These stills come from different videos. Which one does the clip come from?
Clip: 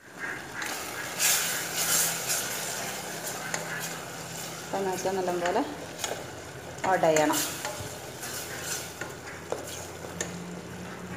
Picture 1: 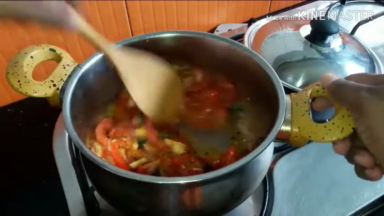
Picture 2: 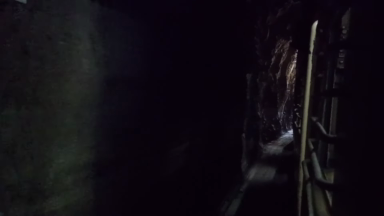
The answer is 1